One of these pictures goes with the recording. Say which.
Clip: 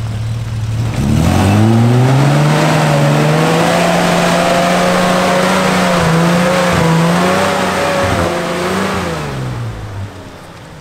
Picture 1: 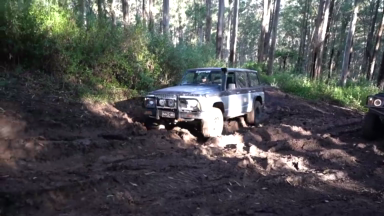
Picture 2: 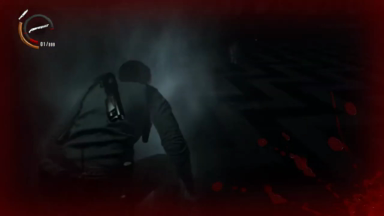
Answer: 1